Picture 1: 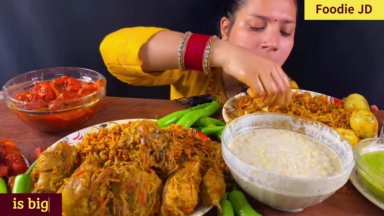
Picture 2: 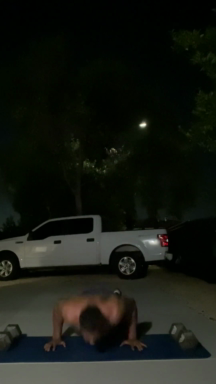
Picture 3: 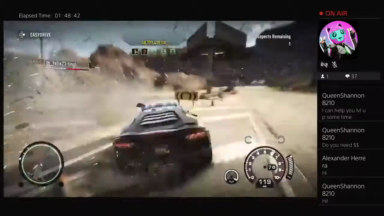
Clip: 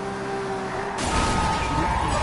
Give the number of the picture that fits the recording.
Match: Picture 3